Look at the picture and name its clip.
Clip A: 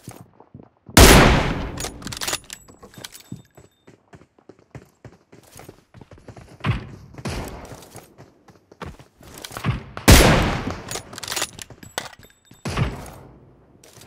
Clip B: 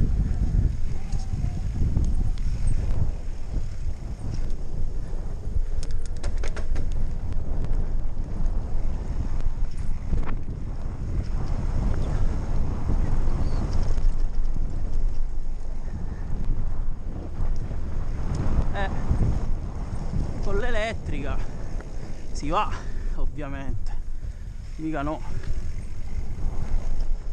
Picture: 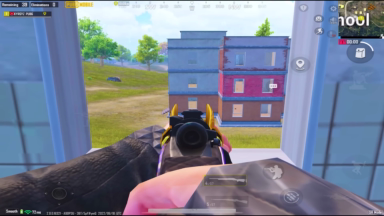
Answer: A